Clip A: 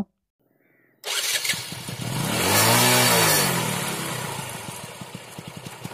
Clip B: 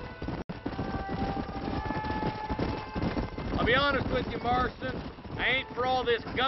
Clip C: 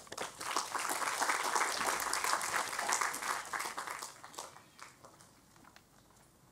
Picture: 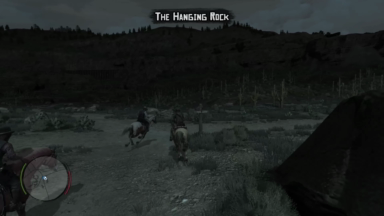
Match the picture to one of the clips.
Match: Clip B